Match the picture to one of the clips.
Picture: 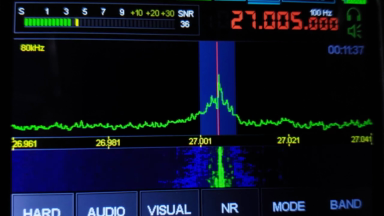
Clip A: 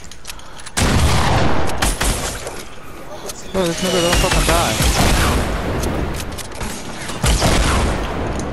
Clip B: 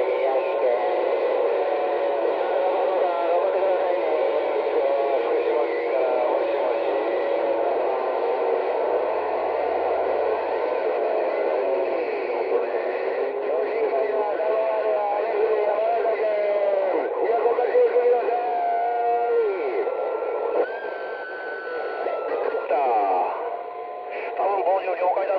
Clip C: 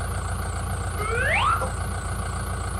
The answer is B